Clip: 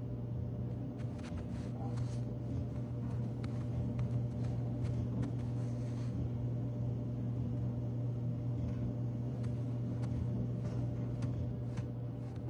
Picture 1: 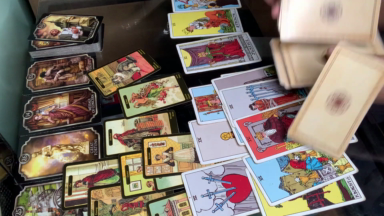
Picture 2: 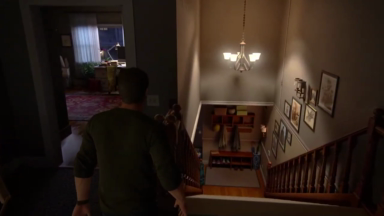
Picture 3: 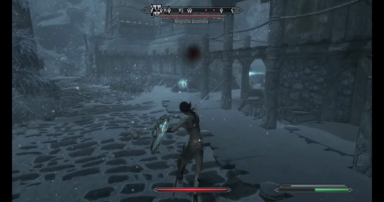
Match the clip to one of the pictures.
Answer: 2